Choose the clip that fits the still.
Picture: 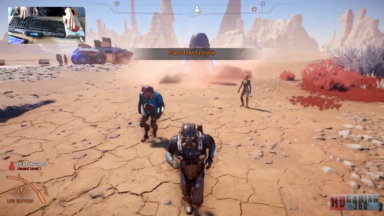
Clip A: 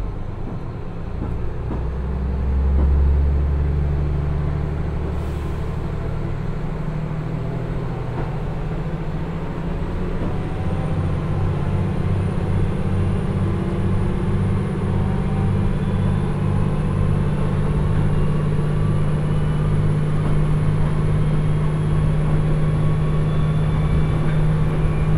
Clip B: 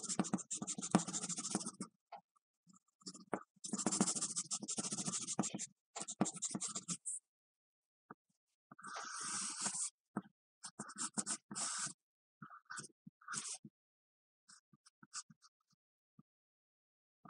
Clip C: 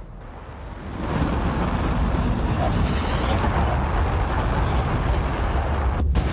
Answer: C